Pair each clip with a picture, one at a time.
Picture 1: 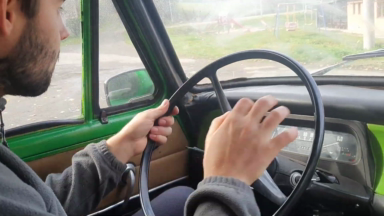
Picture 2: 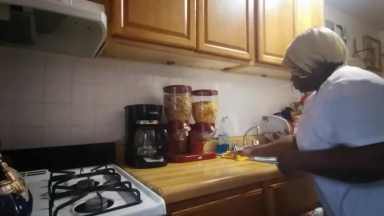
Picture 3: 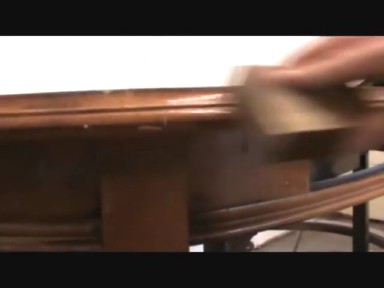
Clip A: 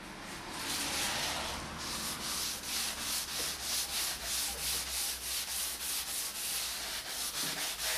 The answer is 3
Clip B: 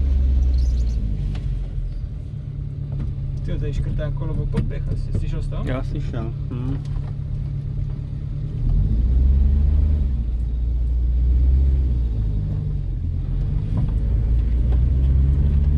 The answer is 1